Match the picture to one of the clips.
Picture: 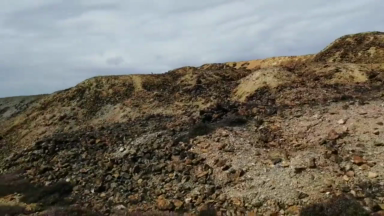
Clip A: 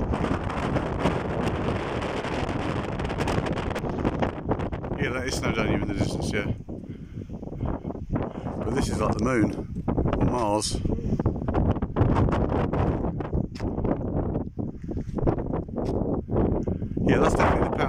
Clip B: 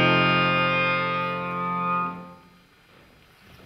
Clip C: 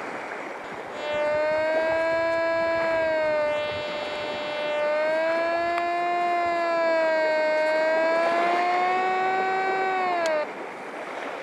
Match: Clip A